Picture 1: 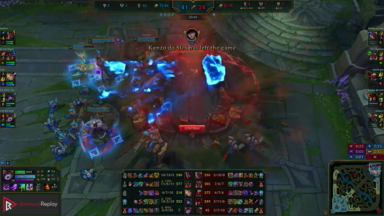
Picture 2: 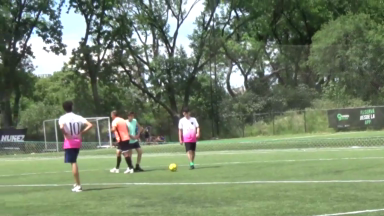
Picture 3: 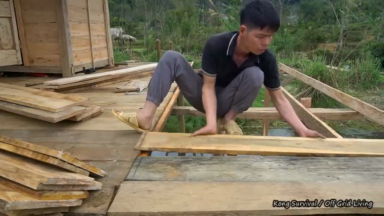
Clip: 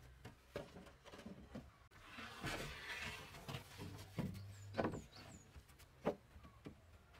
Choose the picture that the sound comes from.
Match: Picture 3